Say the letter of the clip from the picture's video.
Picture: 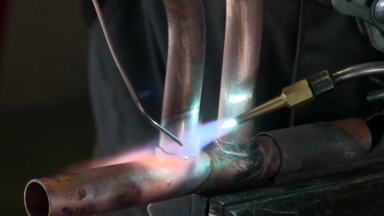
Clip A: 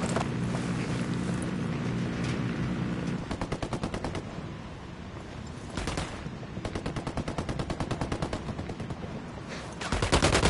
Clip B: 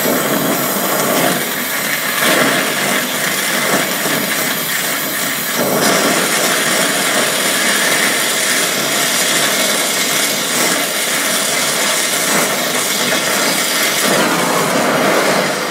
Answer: B